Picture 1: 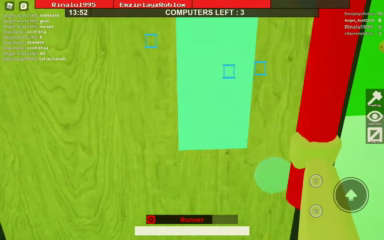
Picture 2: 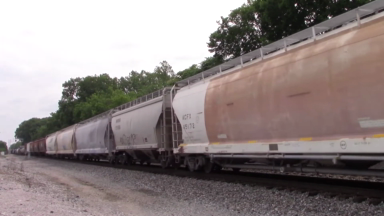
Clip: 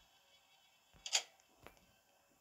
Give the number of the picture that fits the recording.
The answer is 1